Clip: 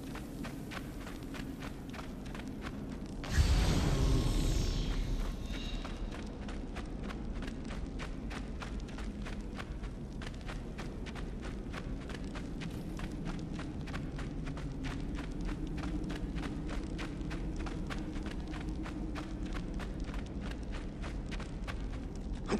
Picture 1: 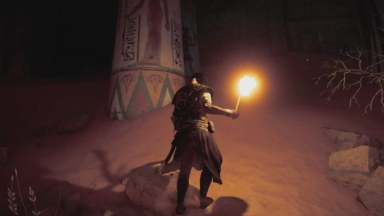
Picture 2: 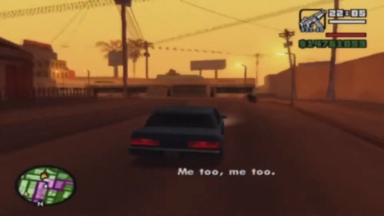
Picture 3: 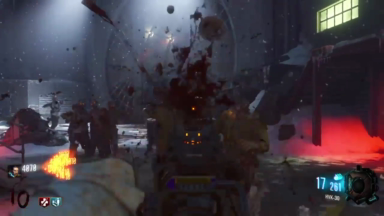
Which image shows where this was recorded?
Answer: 1